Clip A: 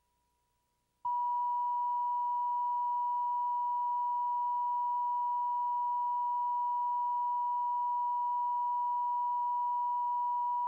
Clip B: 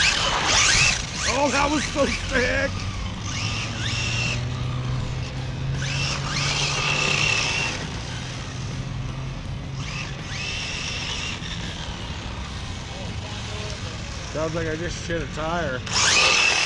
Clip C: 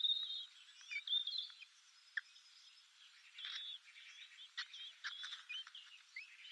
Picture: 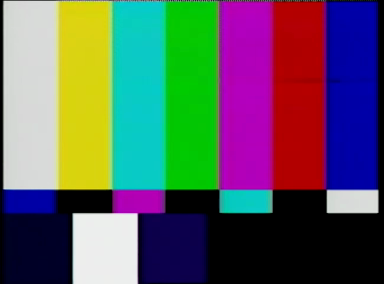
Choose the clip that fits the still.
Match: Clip A